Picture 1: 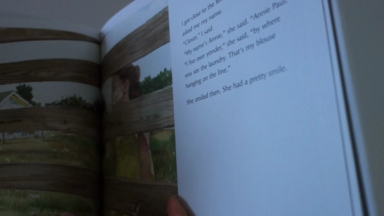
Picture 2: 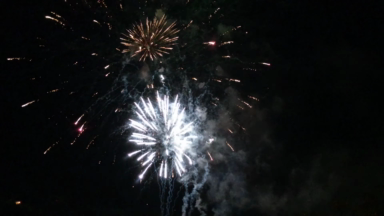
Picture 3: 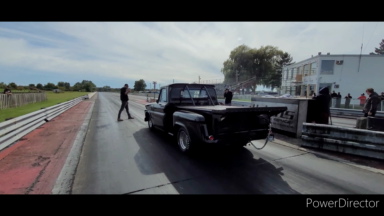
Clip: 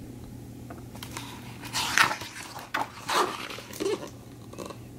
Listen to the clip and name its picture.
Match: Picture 1